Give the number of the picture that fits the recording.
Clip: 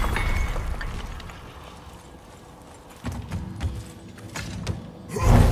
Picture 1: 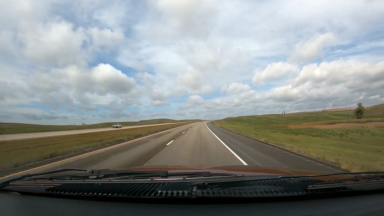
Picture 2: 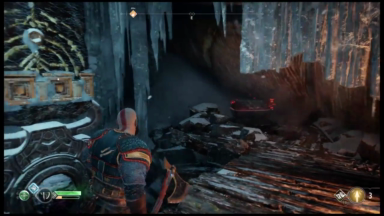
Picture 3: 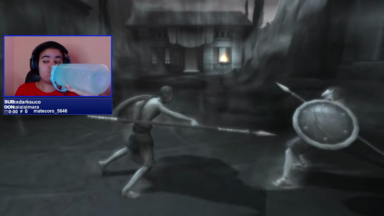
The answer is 2